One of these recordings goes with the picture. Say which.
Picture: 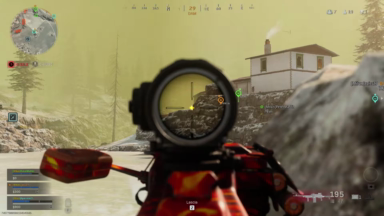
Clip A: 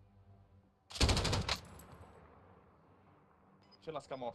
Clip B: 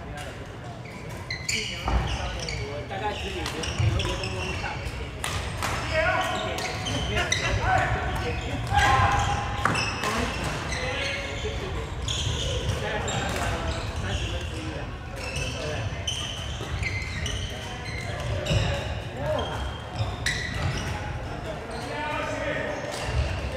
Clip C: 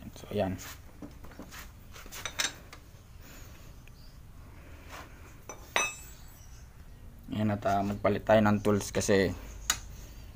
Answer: A